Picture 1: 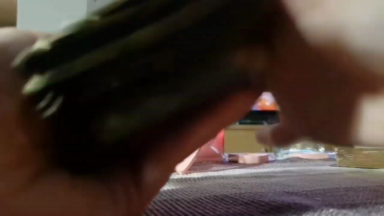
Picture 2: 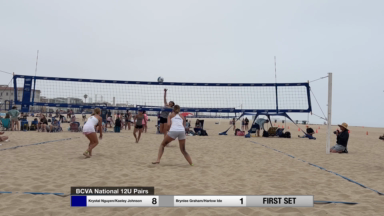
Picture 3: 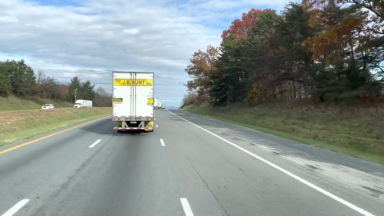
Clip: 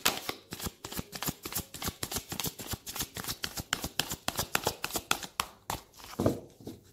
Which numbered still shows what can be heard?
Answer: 1